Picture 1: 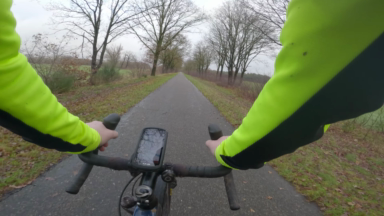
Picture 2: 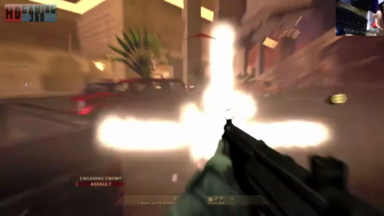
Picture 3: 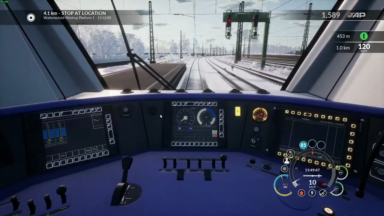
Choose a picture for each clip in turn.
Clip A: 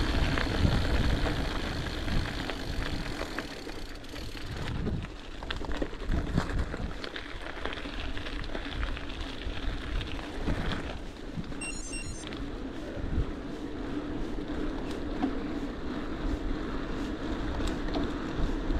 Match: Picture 1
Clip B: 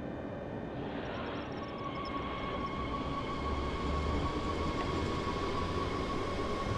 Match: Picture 3